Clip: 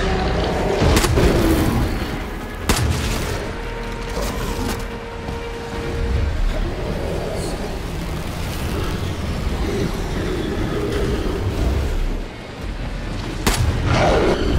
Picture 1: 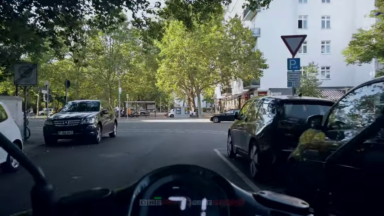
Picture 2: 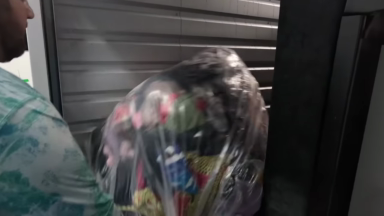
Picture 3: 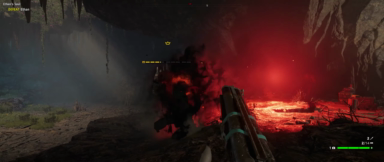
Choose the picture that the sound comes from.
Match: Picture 3